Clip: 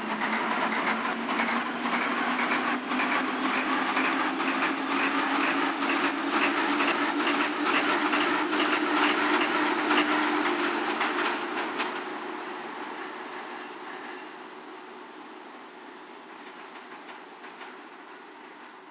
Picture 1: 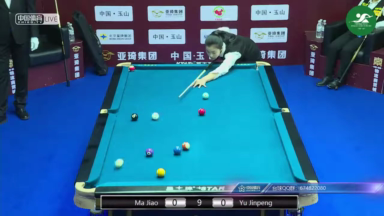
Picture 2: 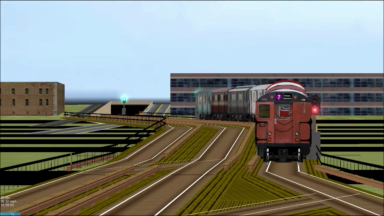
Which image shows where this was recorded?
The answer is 2